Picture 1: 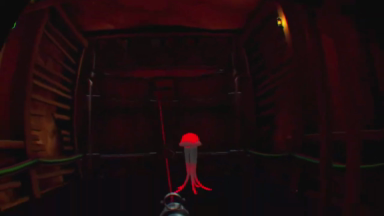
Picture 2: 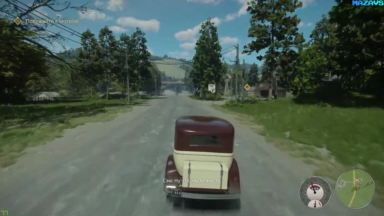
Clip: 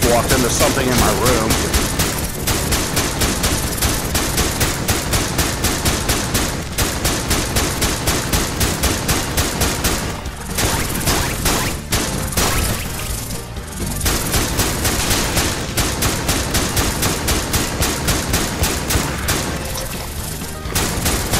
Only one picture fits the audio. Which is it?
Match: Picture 1